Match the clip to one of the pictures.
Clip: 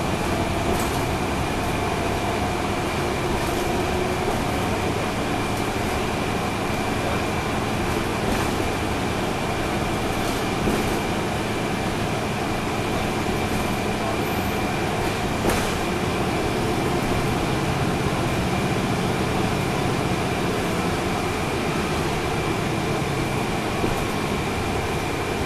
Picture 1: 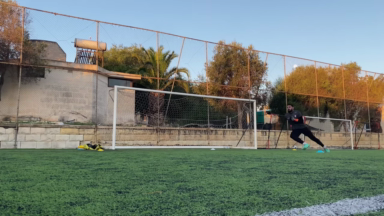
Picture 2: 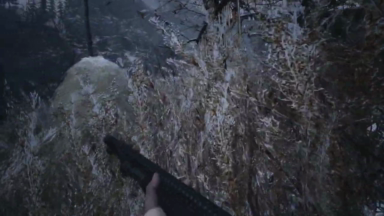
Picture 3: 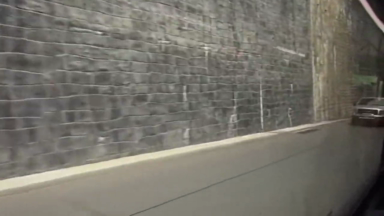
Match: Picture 3